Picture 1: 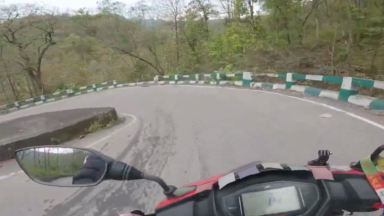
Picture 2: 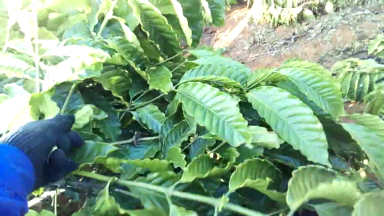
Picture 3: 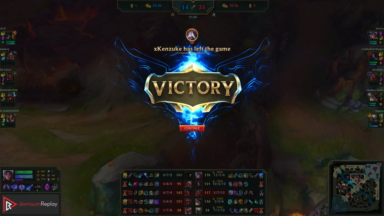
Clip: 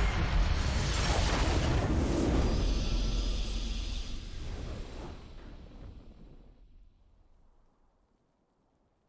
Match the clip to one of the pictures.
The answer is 3